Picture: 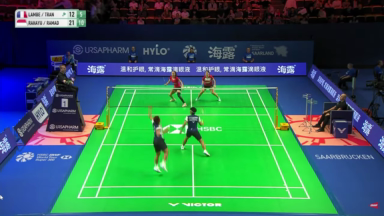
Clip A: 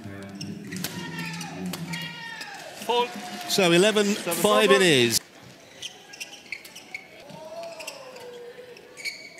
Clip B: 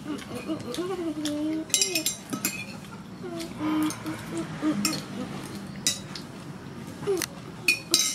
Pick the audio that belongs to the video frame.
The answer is A